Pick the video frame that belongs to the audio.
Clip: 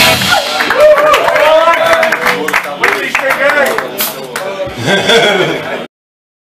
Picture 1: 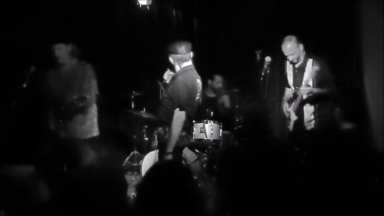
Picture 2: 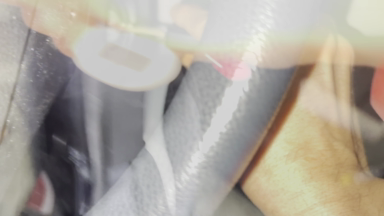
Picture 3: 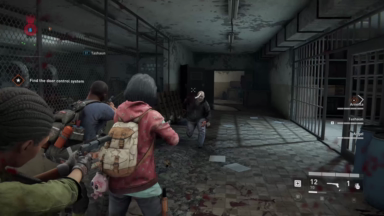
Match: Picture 1